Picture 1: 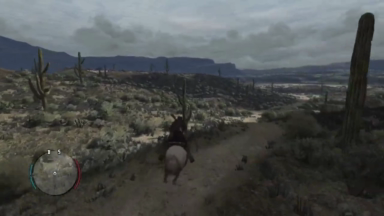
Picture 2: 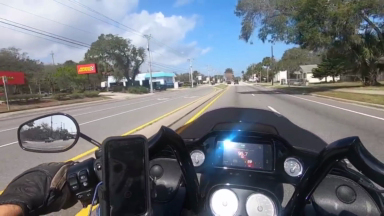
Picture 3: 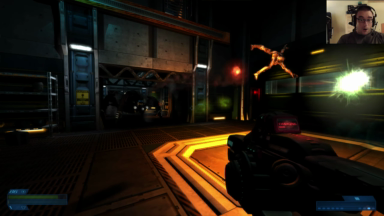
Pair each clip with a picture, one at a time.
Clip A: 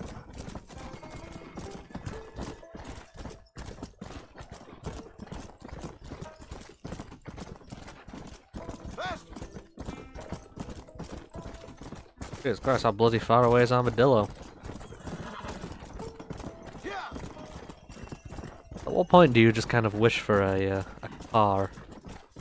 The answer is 1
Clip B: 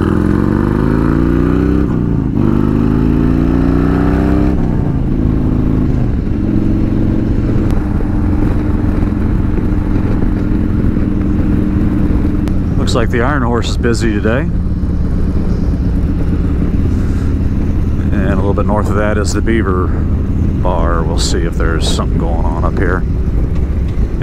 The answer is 2